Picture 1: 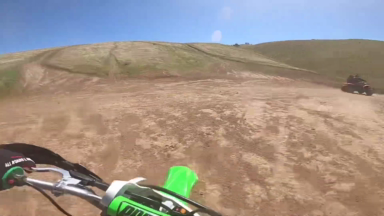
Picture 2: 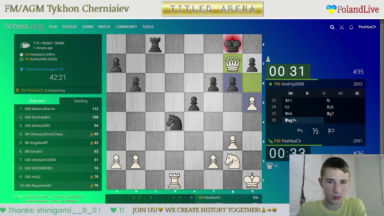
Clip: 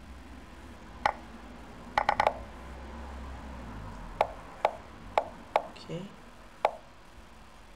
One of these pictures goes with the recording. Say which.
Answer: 2